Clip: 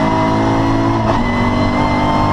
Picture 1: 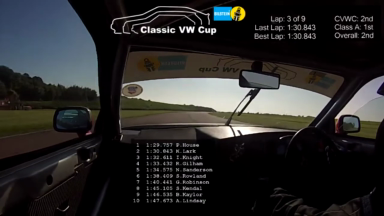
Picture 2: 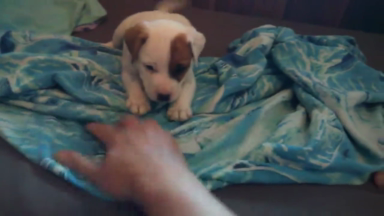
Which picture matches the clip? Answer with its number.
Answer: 1